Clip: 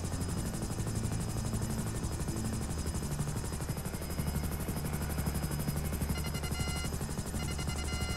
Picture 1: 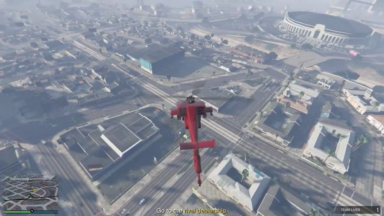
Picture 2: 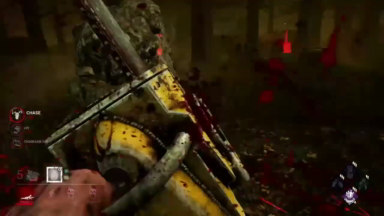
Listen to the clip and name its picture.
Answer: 1